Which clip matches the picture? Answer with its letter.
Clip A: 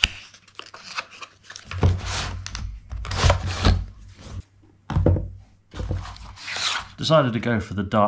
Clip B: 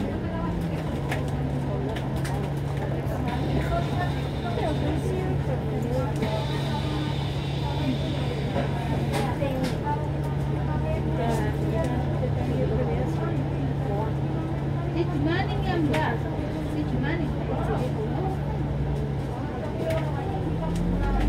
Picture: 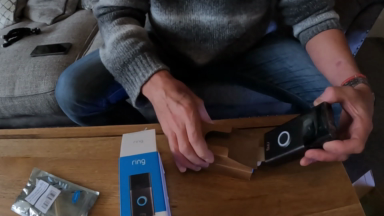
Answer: A